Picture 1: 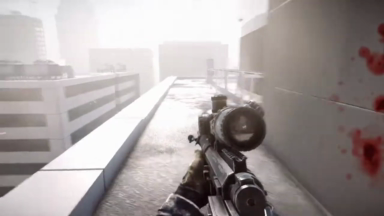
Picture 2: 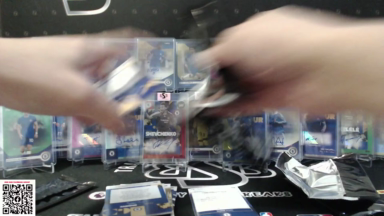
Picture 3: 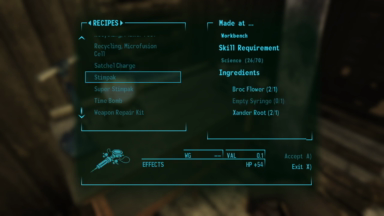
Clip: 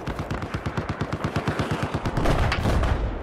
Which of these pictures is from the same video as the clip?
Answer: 1